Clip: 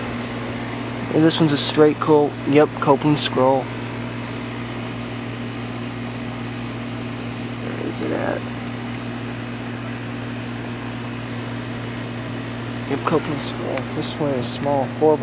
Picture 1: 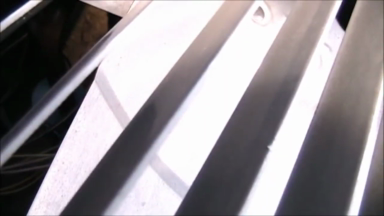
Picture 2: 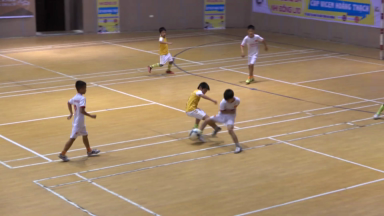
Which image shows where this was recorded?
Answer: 1